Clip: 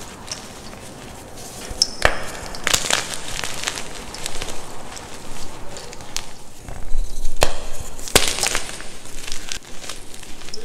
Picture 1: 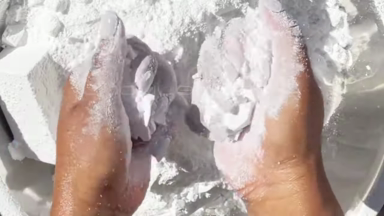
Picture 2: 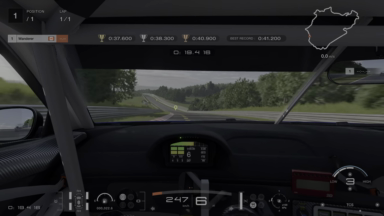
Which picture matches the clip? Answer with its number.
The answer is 1